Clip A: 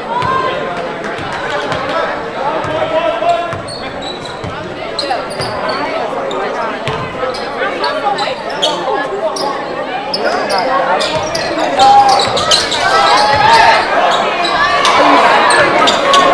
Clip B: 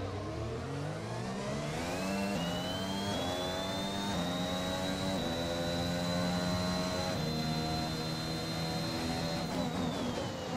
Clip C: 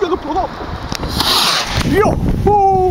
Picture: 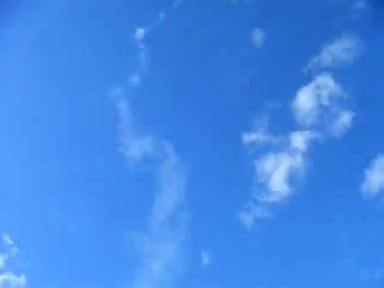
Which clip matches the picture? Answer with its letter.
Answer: C